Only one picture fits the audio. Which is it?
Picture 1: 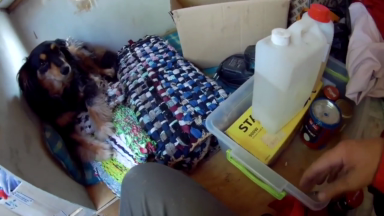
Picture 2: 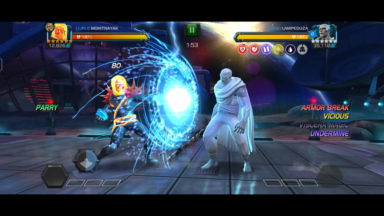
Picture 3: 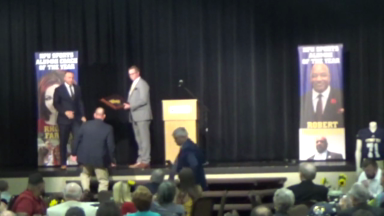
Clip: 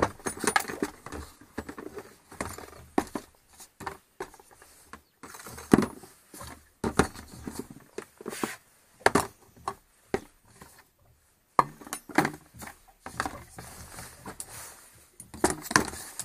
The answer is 1